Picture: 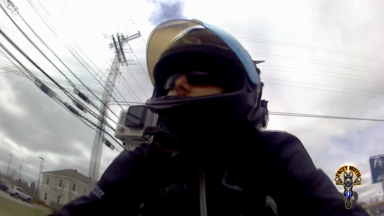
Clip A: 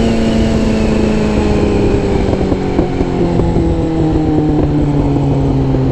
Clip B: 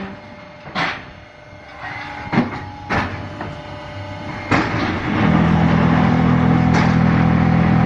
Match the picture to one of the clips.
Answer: A